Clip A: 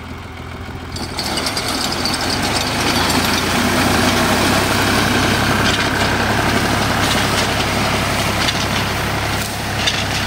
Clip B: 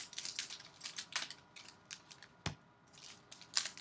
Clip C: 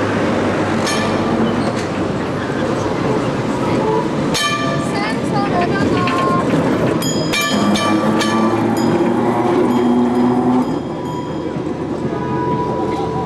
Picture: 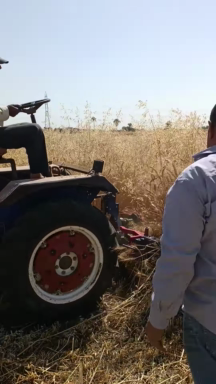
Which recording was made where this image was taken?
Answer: A